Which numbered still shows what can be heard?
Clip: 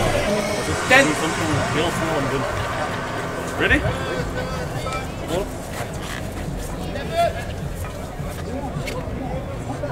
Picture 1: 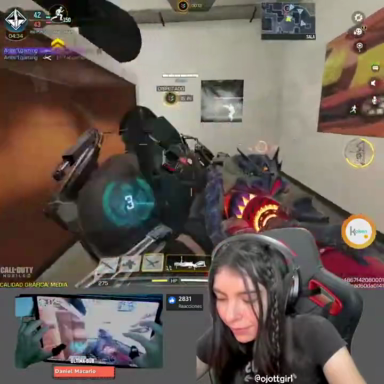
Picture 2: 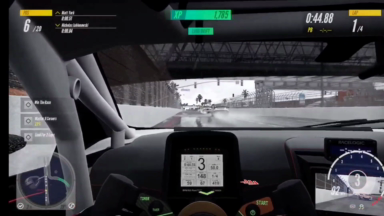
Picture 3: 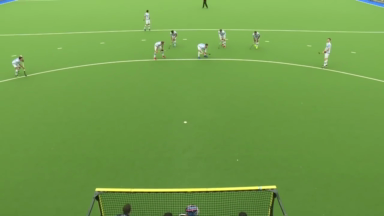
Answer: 3